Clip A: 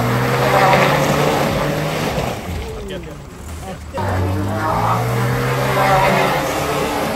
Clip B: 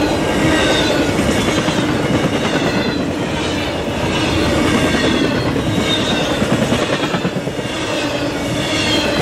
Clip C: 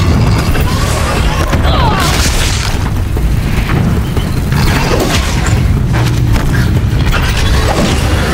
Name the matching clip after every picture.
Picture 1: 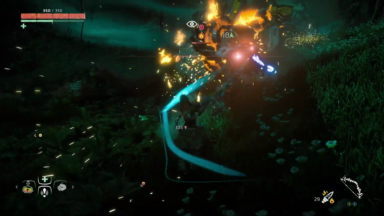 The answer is C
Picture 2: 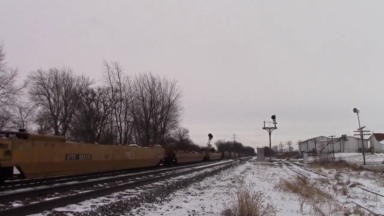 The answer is B